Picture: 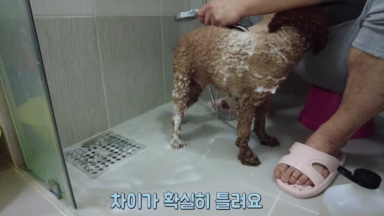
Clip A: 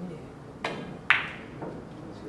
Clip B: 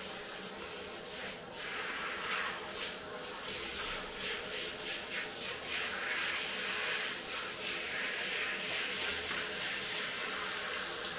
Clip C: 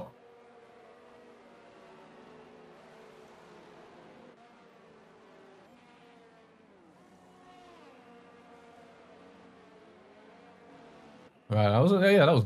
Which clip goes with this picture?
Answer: B